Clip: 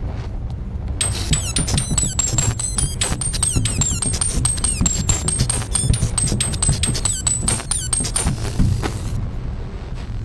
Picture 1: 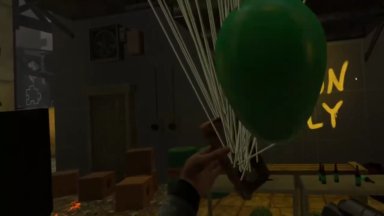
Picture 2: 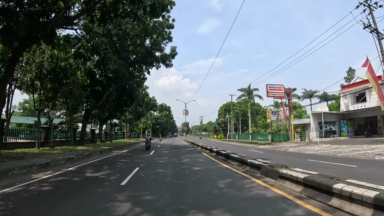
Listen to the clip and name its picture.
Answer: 1